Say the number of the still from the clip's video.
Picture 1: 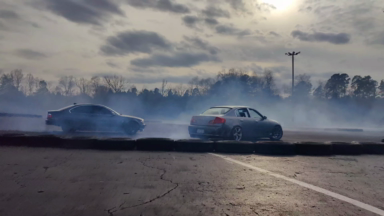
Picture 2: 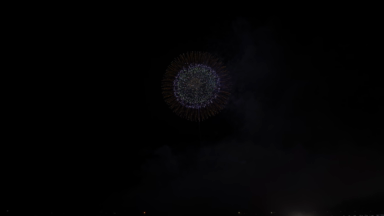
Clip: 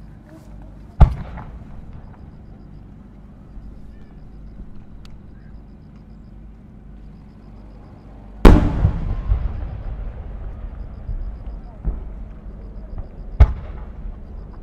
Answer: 2